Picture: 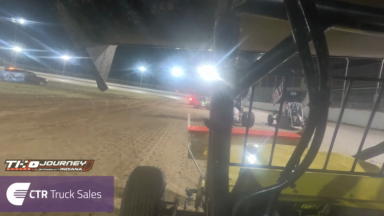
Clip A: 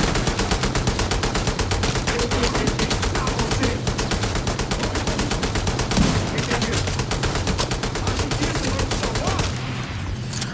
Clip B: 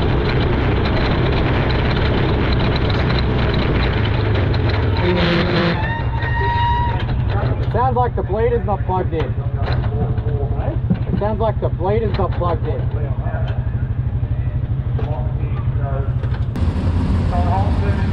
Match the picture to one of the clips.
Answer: B